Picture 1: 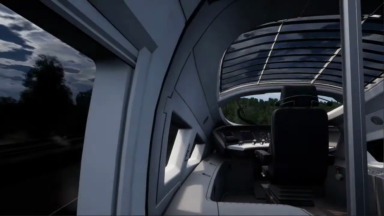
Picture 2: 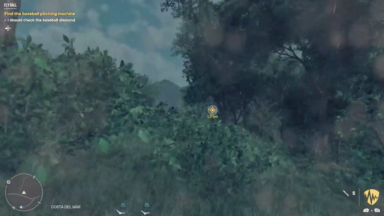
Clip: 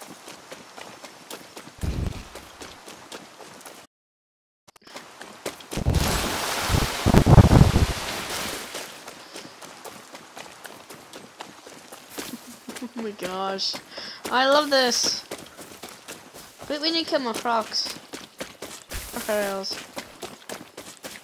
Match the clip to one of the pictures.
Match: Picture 2